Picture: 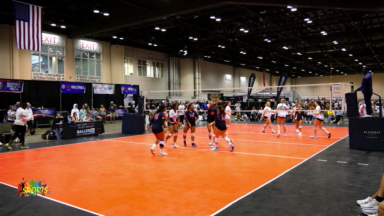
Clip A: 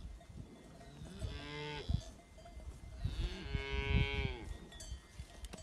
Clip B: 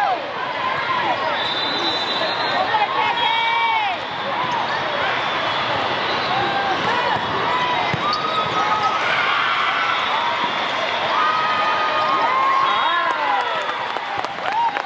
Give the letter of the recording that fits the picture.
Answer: B